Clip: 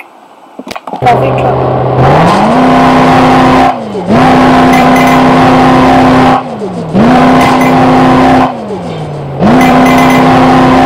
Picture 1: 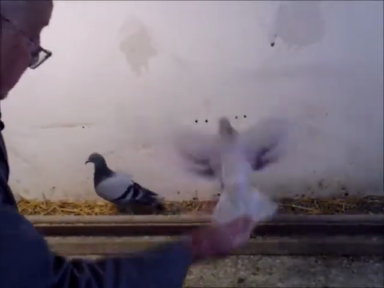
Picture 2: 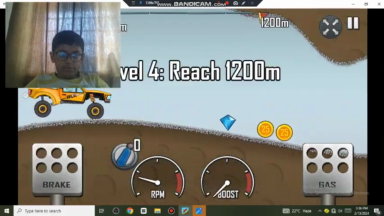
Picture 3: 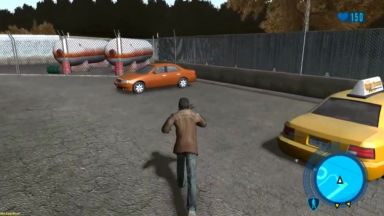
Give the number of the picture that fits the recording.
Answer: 2